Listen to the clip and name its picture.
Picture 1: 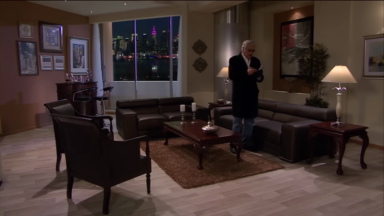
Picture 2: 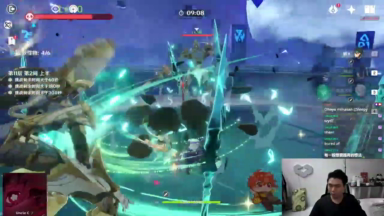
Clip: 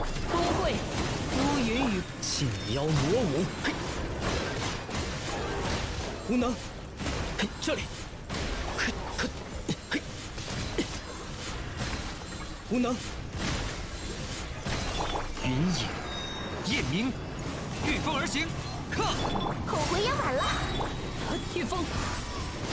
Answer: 2